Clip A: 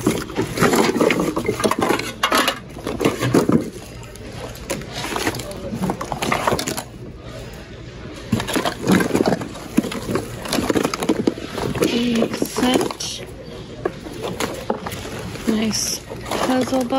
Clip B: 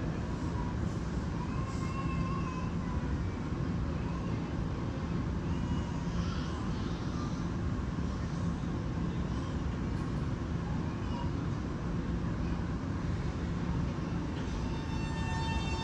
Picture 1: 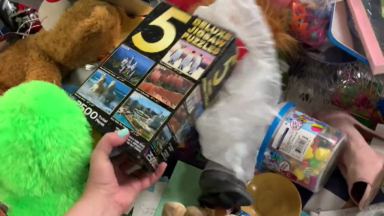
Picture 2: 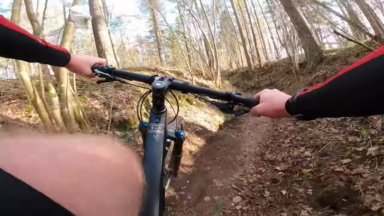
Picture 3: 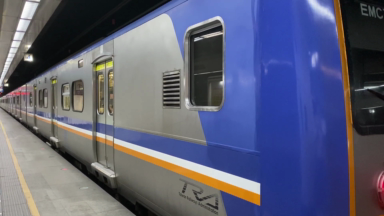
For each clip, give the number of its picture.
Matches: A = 1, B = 3